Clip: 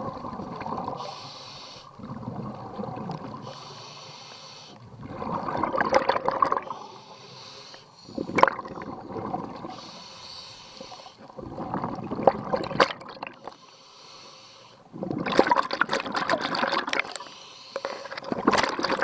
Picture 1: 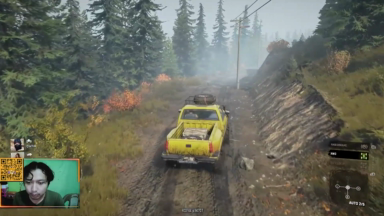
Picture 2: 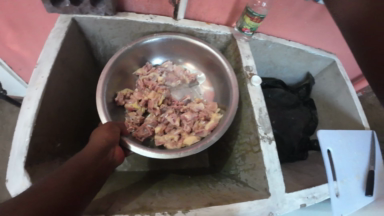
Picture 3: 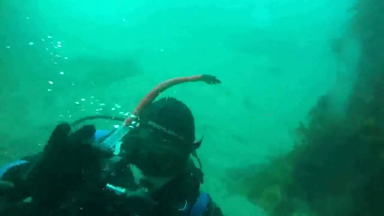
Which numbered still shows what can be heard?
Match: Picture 3